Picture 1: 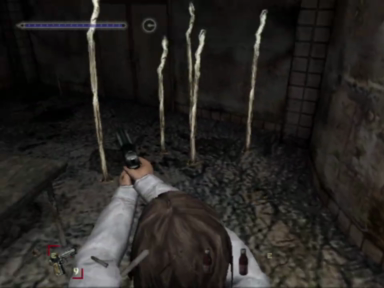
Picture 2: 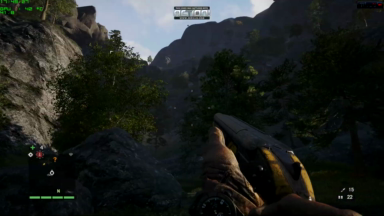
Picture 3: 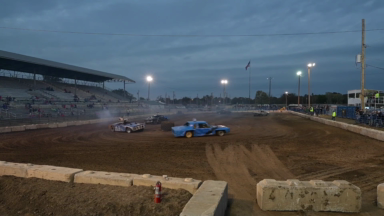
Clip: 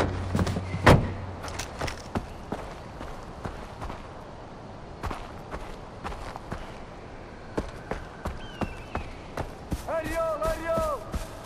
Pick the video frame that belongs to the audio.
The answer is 2